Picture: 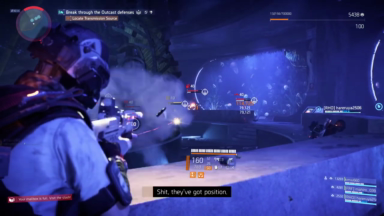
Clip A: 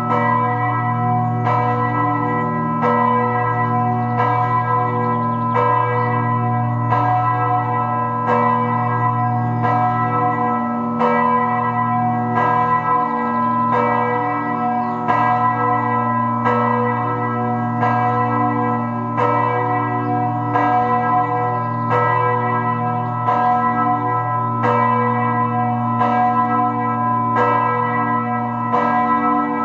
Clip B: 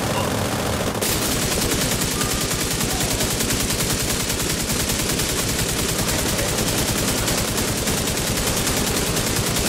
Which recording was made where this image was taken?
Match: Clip B